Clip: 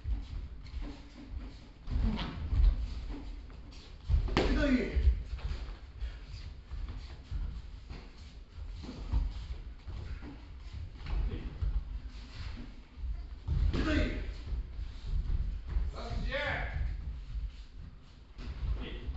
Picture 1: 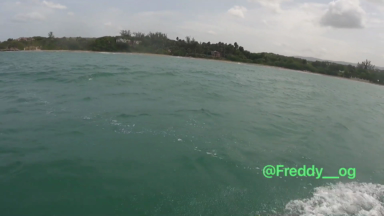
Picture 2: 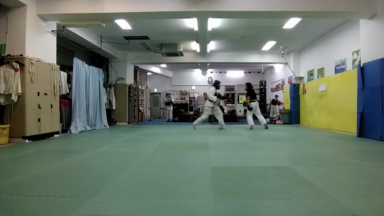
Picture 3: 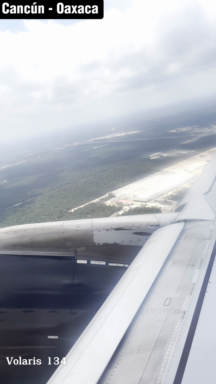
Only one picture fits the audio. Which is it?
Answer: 2